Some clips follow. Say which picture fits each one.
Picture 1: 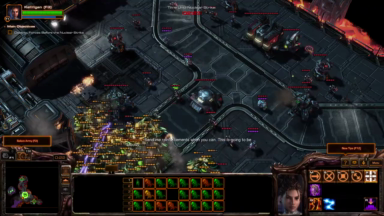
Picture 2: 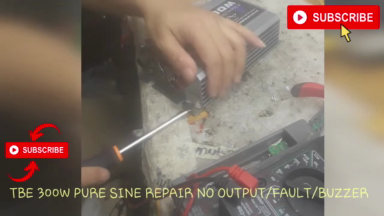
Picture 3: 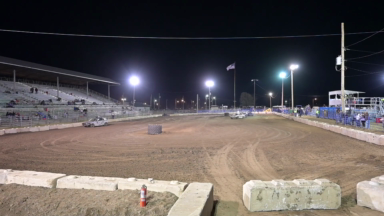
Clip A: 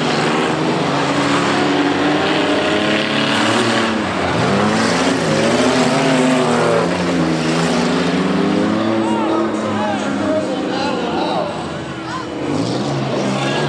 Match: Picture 3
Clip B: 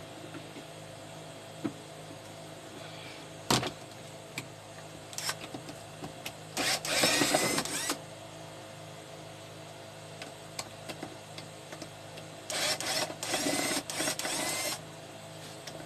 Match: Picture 2